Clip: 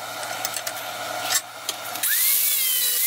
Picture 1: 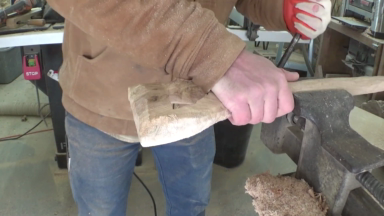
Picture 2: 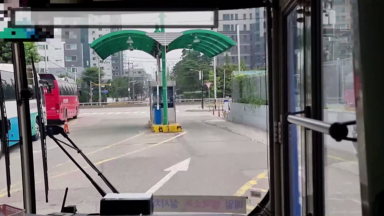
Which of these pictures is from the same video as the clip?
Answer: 1